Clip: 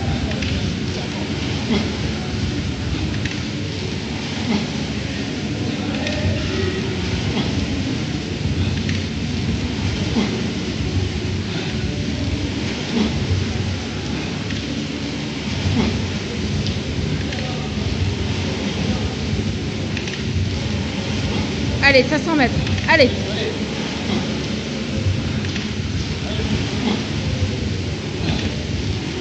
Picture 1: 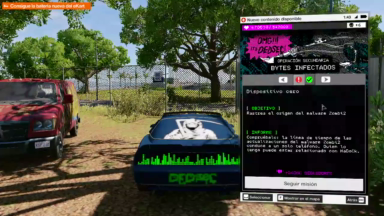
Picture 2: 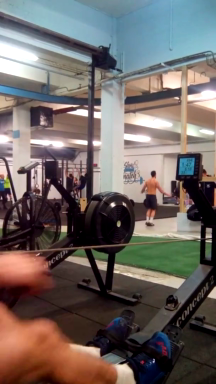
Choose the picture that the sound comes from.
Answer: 2